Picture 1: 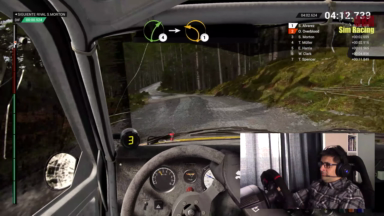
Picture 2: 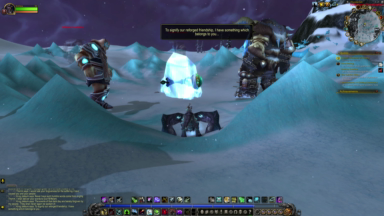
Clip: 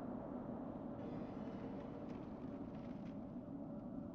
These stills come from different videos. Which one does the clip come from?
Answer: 2